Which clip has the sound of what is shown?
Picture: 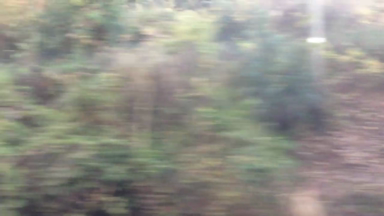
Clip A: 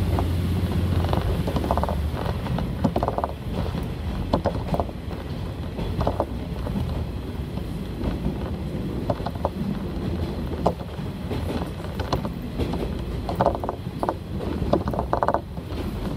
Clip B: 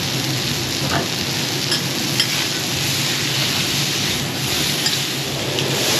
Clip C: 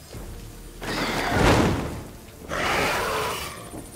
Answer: A